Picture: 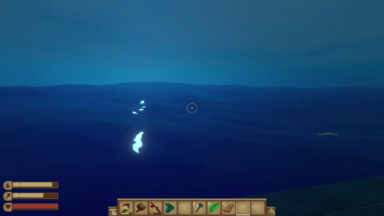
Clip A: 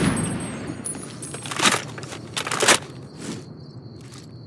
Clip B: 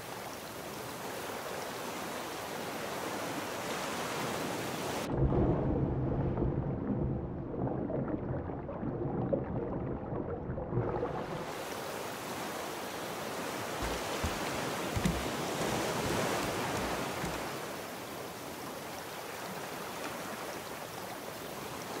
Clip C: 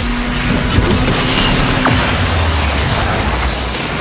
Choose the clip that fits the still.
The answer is B